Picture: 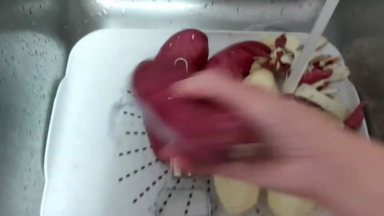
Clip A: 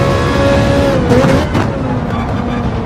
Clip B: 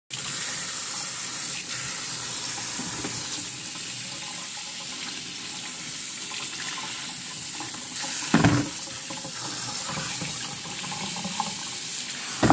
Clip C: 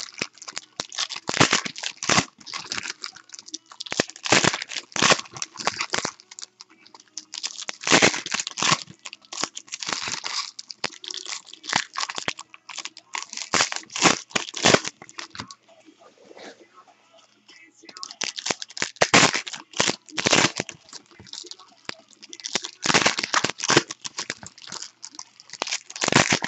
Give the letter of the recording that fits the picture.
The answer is B